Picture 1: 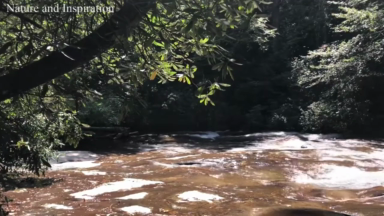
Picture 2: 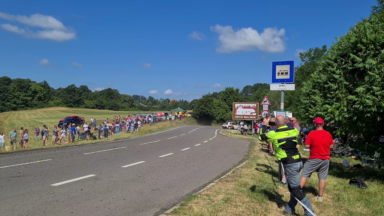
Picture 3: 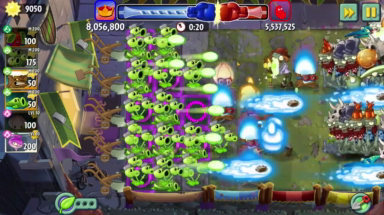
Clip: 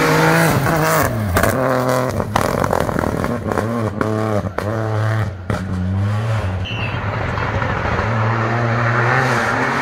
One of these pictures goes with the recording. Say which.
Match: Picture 2